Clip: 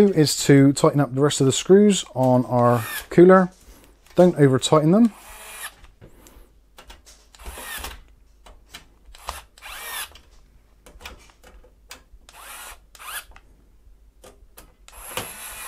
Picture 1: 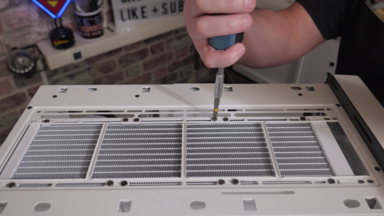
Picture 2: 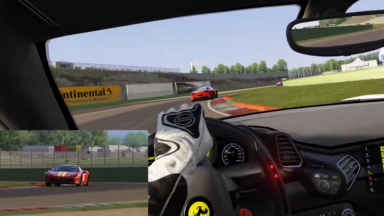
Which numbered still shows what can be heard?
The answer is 1